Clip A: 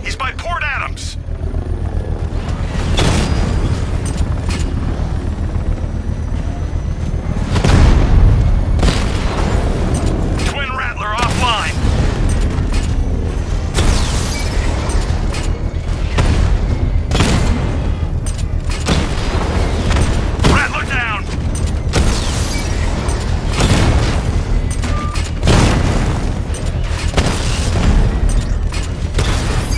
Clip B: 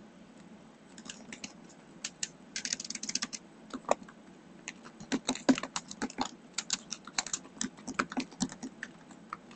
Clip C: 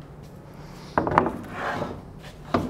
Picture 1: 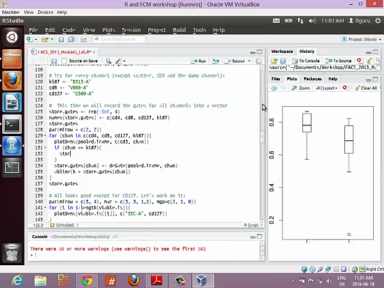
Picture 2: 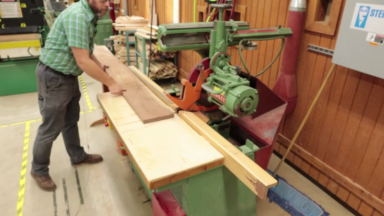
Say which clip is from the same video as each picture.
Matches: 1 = B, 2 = C